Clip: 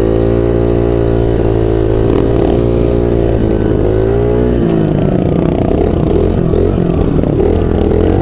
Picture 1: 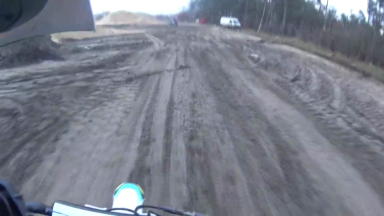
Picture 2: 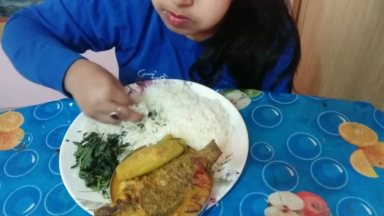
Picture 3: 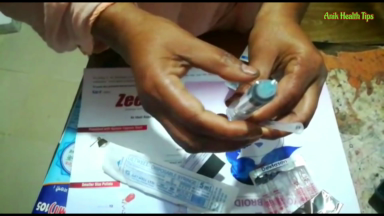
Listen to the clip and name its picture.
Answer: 1